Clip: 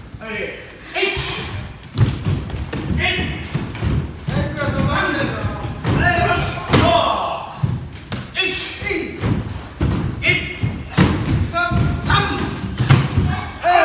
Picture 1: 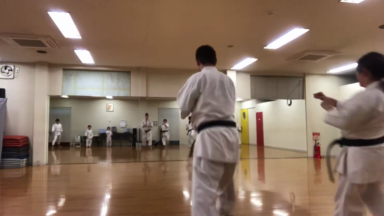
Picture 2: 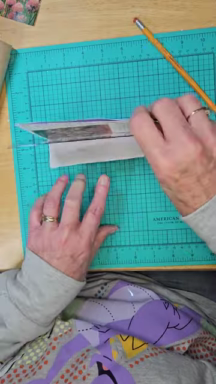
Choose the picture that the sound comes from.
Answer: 1